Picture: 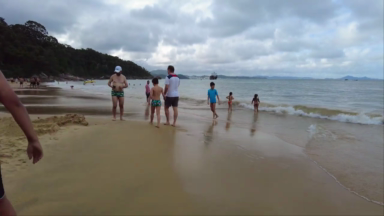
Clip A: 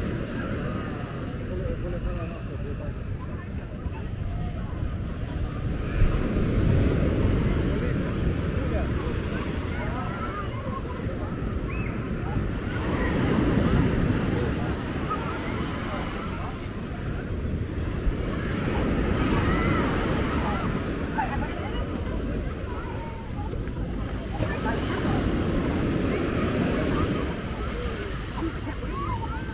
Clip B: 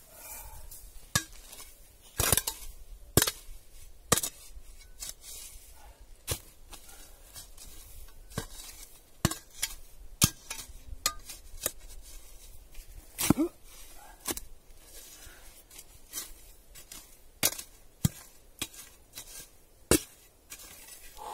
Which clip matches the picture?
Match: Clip A